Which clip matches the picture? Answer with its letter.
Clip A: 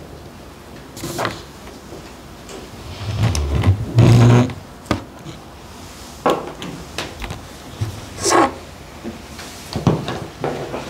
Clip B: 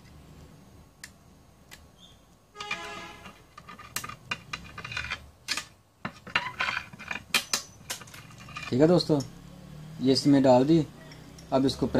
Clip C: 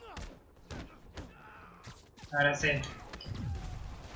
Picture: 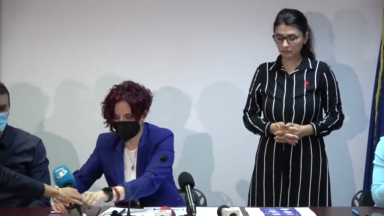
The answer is A